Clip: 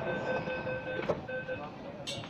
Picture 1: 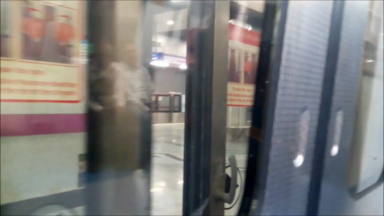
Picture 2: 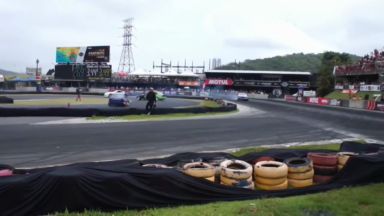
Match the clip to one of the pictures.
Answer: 1